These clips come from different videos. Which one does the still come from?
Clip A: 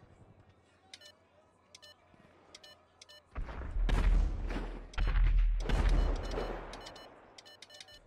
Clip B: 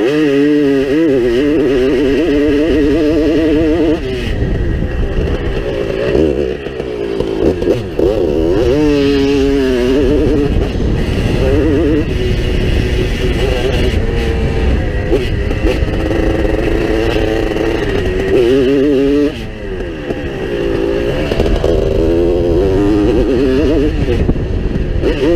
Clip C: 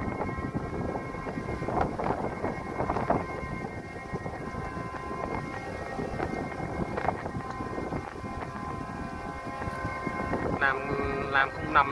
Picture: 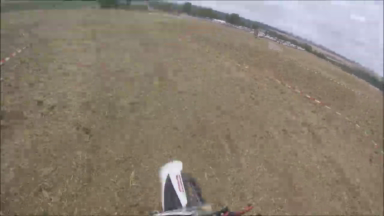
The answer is B